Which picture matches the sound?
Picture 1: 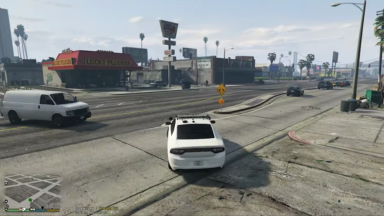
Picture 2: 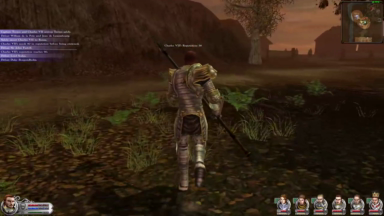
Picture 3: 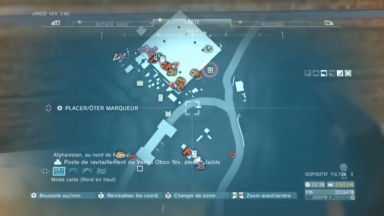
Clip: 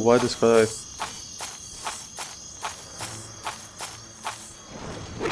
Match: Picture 2